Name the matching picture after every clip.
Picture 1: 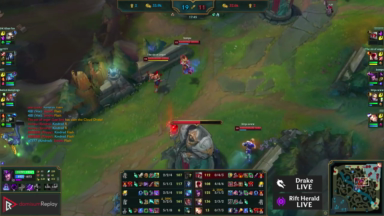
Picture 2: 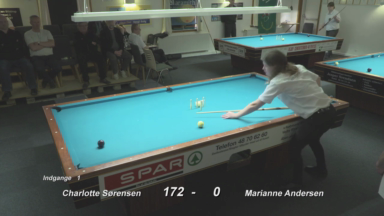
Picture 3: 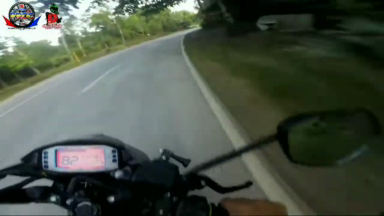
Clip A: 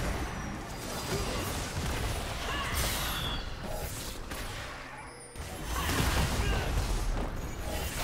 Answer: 1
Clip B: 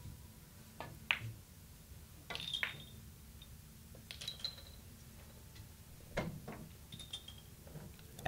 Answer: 2